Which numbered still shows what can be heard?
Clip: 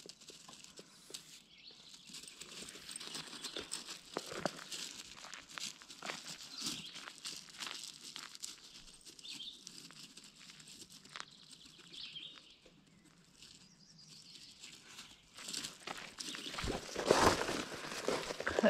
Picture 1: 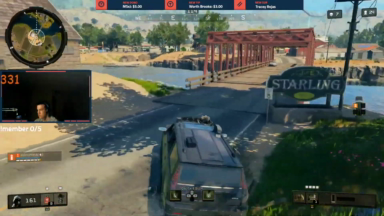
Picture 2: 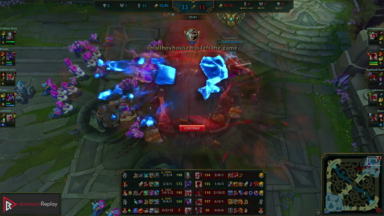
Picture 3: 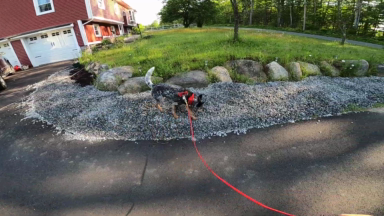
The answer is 3